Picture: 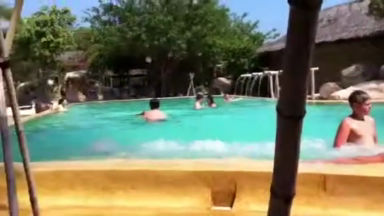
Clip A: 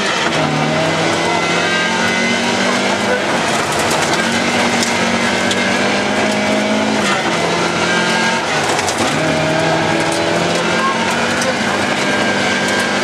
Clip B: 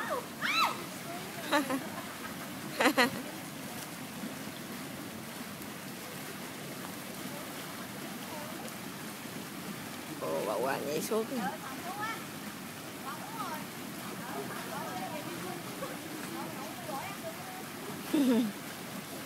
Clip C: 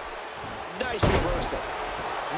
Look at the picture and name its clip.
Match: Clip B